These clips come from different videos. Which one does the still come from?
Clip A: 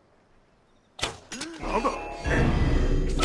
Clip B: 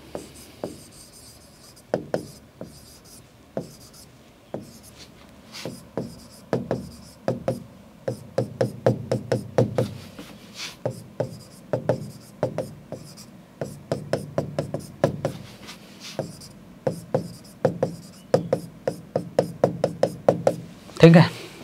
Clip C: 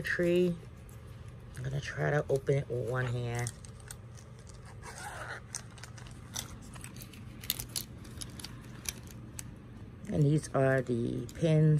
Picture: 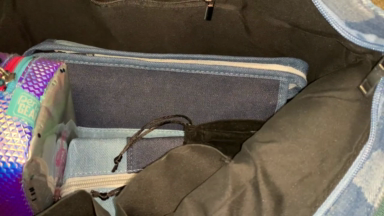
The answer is C